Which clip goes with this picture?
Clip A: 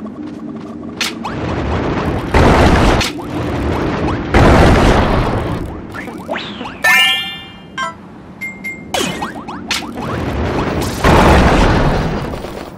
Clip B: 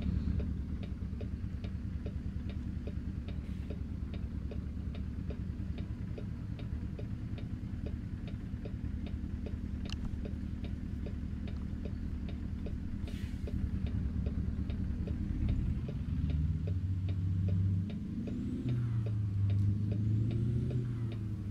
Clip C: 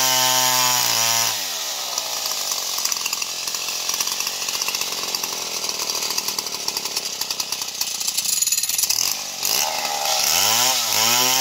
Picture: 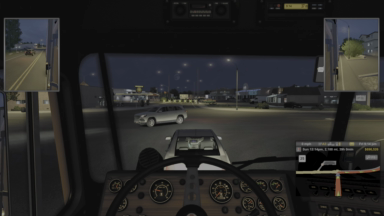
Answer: B